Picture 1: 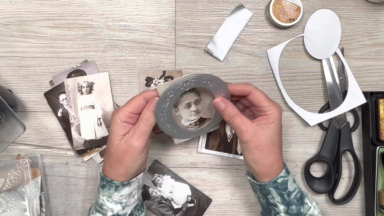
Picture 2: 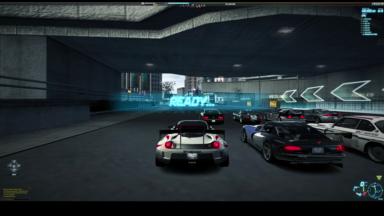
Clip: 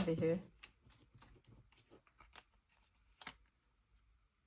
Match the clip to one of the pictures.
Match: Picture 1